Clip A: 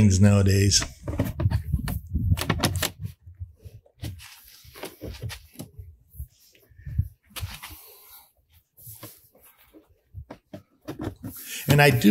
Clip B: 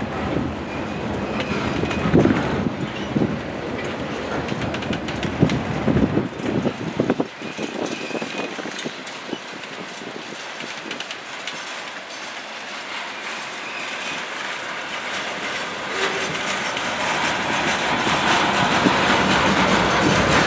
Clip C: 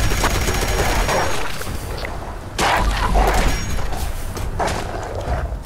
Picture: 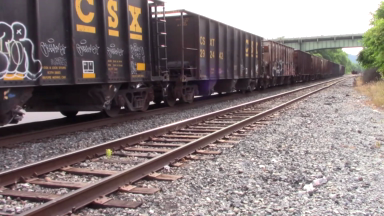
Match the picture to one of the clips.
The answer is B